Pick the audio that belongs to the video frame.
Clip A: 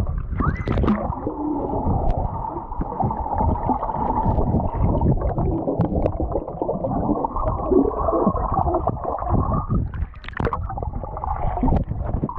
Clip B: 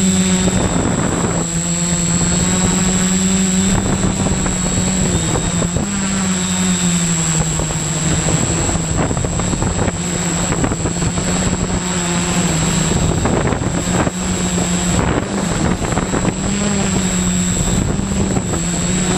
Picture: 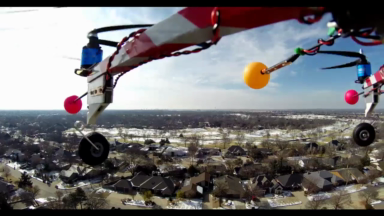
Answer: B